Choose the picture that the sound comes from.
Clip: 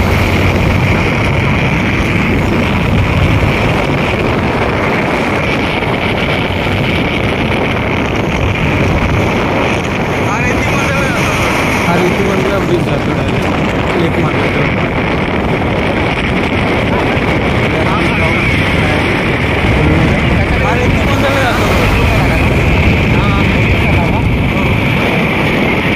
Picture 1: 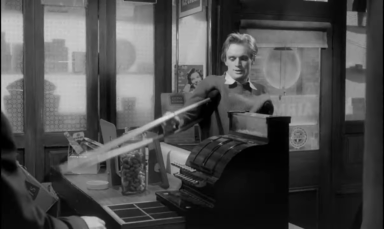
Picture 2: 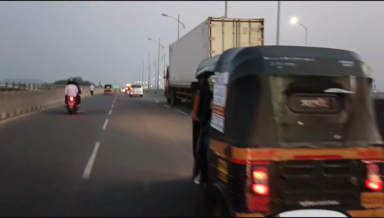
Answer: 2